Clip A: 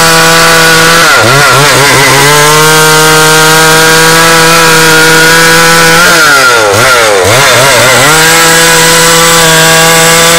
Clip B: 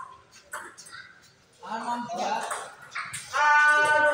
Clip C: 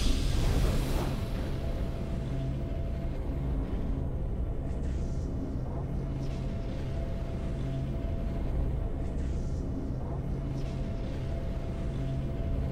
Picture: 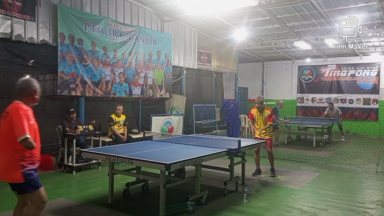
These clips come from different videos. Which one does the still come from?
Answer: B